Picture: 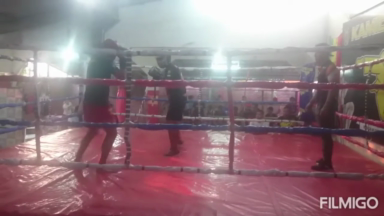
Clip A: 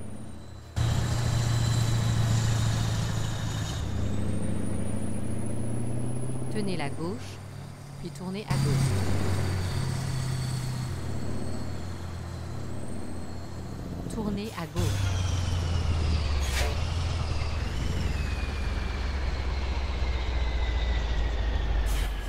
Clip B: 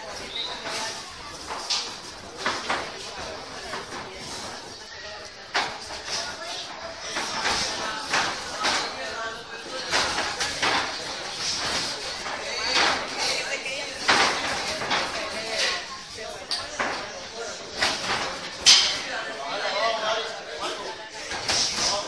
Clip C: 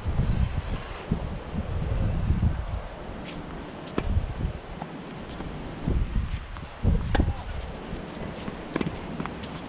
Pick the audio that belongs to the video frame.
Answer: B